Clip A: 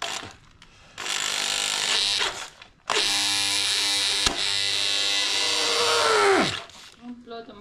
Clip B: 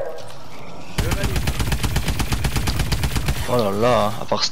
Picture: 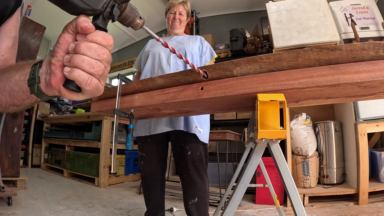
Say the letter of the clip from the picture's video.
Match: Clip A